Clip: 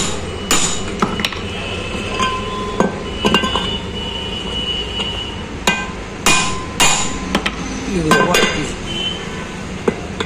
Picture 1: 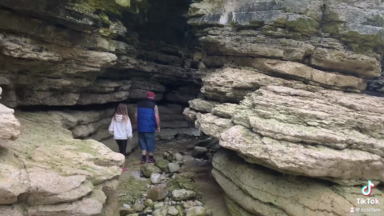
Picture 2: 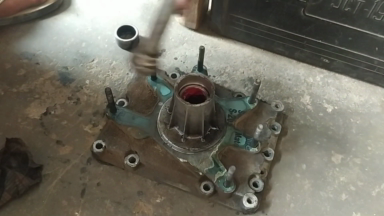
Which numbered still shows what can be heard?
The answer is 2